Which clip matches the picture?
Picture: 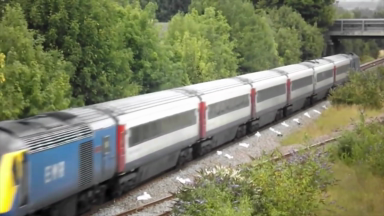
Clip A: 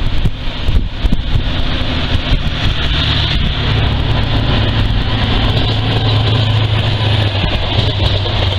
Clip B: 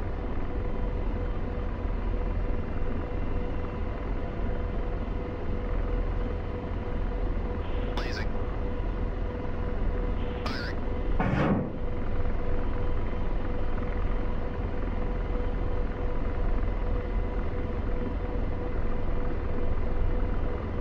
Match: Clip A